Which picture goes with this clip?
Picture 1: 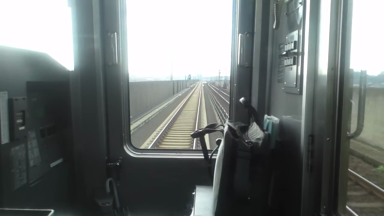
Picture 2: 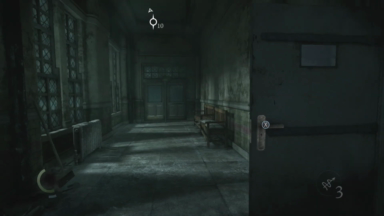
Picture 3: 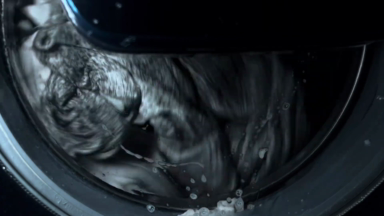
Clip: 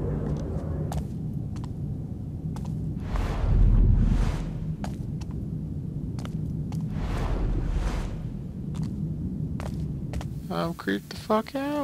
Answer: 2